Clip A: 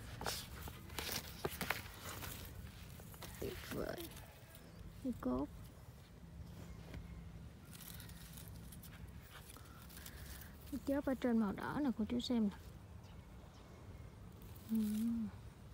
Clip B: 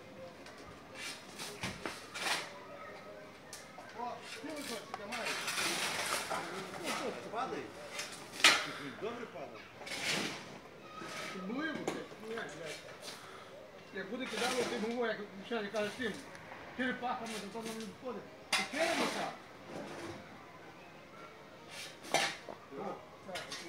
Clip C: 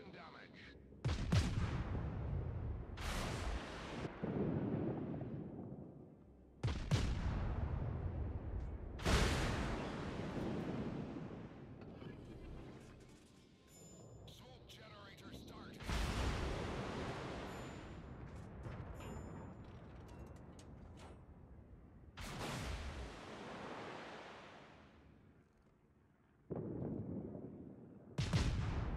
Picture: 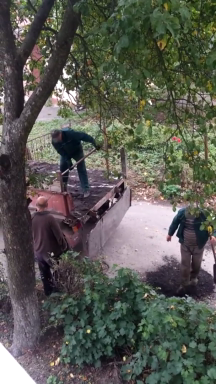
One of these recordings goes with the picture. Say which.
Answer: B